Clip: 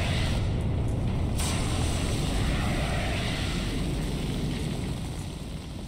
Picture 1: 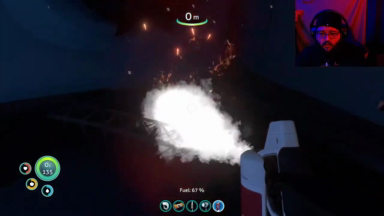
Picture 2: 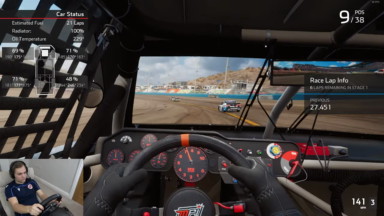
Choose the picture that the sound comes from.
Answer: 1